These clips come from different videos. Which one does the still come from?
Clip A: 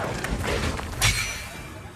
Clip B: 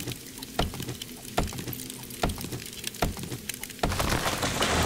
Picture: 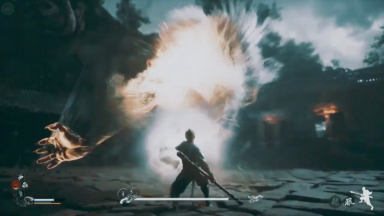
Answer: A